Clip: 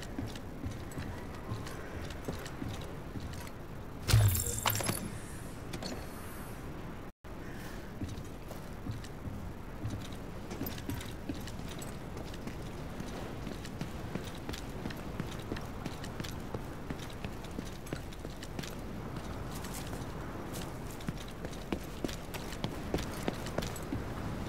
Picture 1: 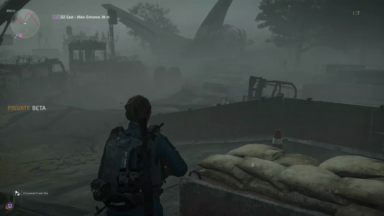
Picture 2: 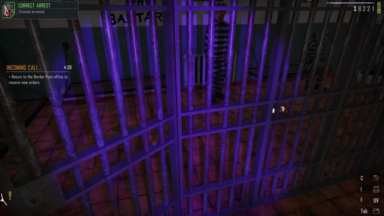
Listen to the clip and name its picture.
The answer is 1